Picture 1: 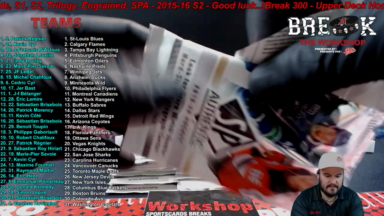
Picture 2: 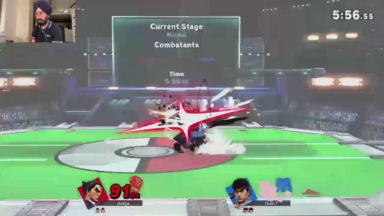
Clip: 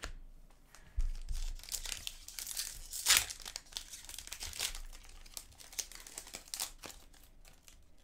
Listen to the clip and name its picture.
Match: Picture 1